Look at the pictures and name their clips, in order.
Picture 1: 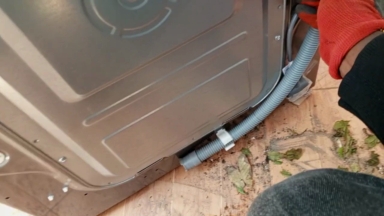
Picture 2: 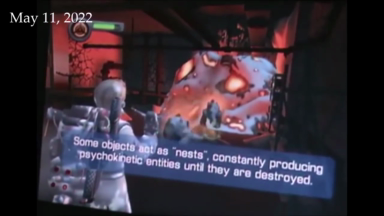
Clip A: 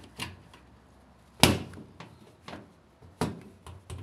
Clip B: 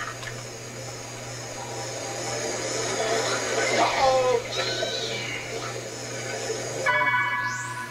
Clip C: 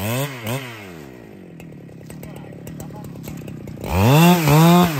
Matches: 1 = A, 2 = B